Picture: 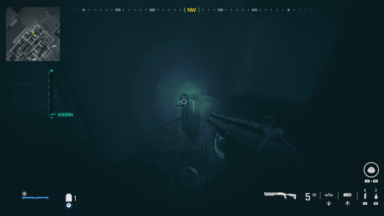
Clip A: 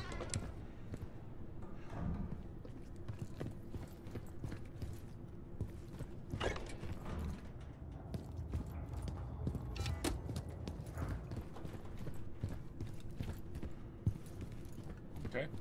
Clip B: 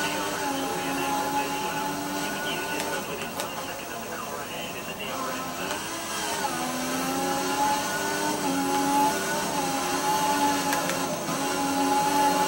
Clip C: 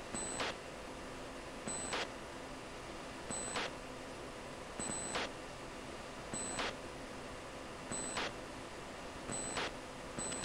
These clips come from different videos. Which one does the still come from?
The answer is A